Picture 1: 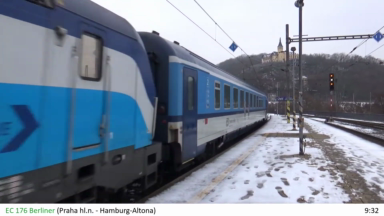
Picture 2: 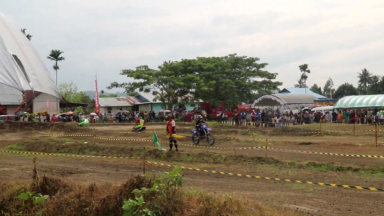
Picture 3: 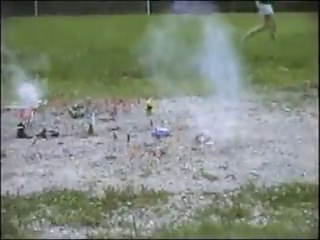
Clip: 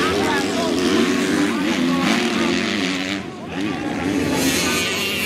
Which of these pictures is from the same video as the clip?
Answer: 2